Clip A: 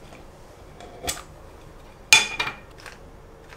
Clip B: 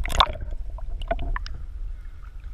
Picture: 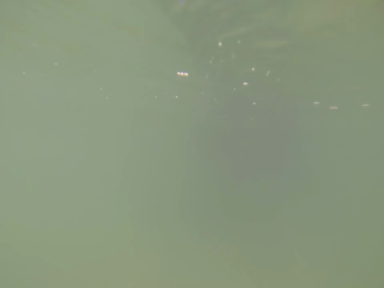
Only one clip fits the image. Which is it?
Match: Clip B